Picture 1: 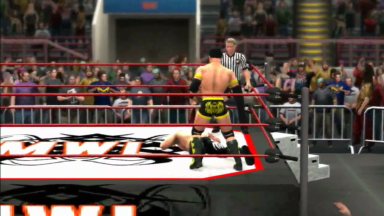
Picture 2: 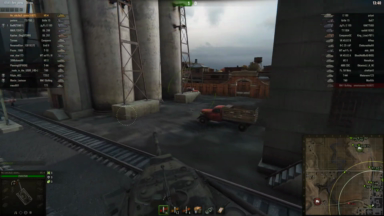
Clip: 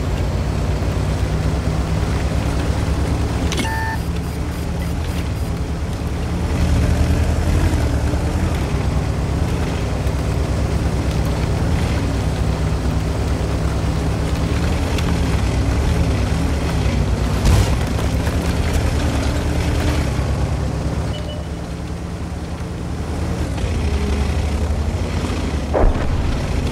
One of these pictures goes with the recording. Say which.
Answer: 2